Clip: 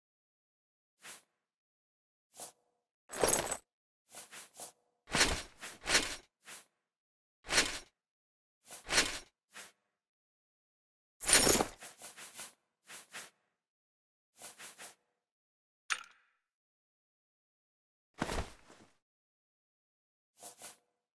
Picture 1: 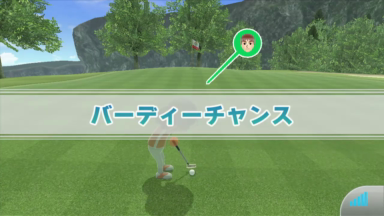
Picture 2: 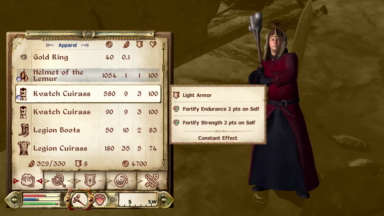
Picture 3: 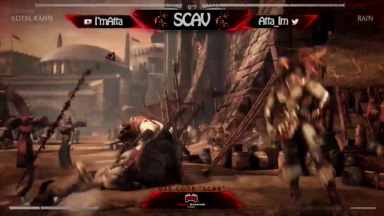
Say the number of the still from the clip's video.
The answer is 2